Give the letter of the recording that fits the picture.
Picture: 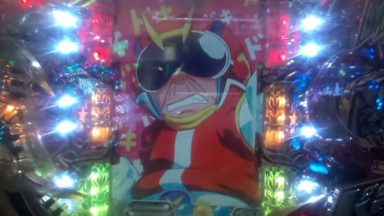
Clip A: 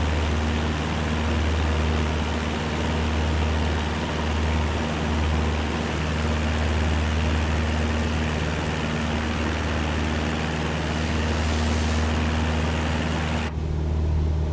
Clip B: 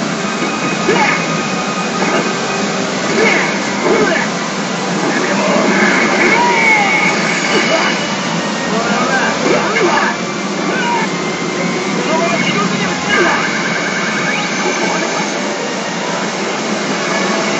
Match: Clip B